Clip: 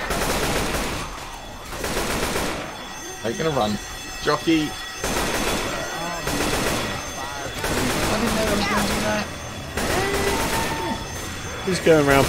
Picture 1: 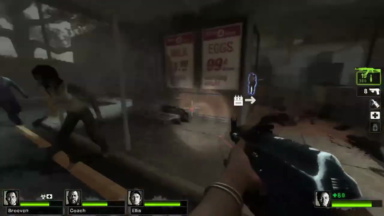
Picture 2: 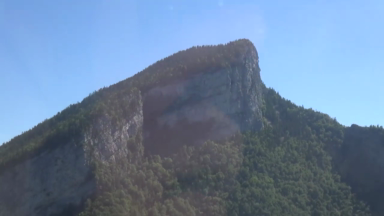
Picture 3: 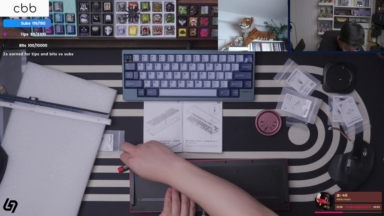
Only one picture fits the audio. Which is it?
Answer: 1